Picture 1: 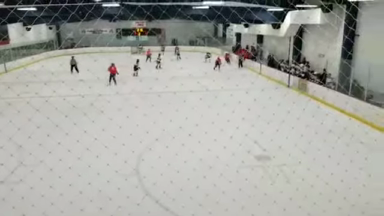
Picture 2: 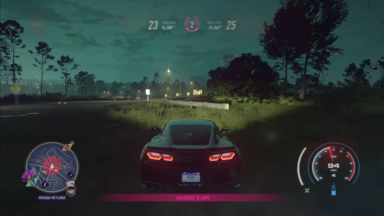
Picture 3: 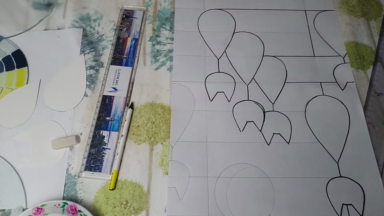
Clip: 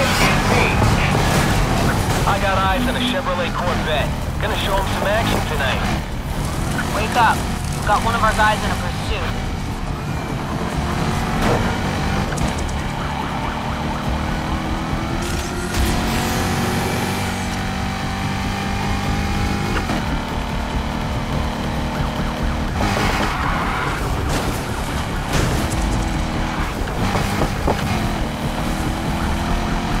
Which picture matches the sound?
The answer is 2